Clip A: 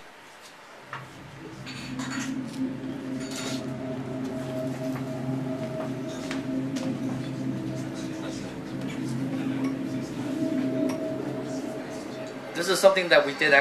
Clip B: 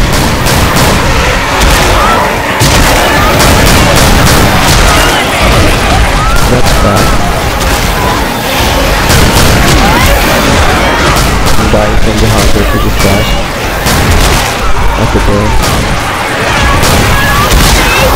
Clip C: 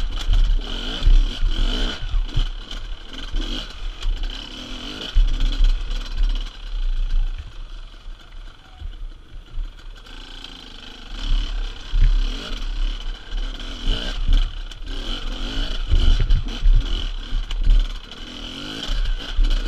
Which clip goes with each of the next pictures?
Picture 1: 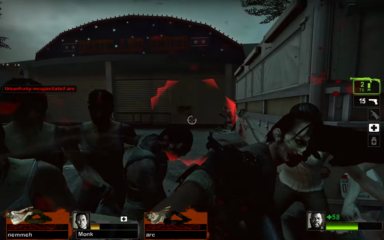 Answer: B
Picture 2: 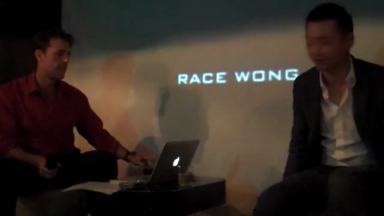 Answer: A